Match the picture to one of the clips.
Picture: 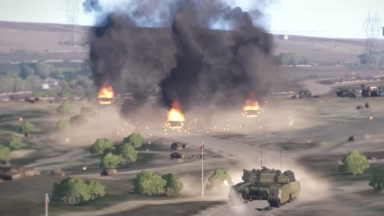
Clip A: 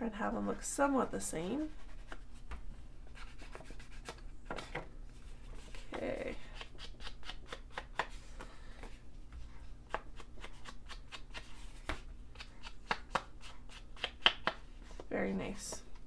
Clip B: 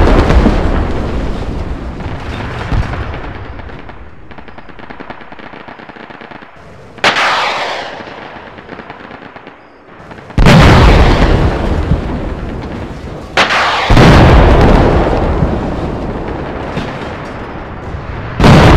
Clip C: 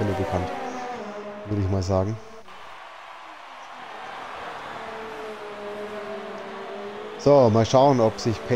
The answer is B